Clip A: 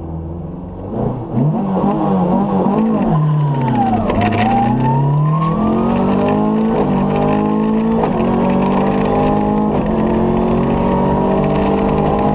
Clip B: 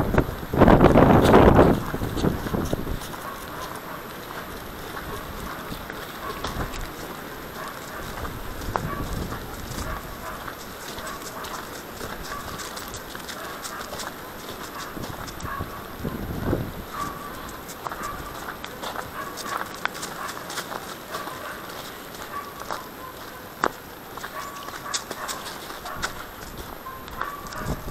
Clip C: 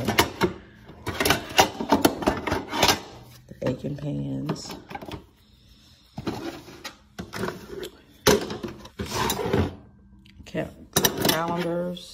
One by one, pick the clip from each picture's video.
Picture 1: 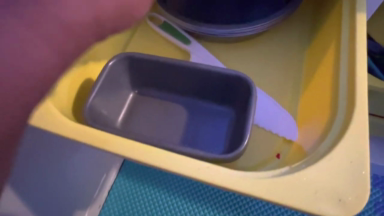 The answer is C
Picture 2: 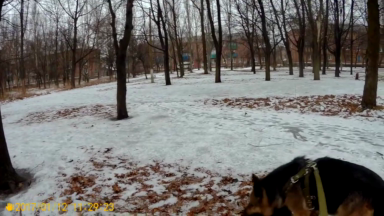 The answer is B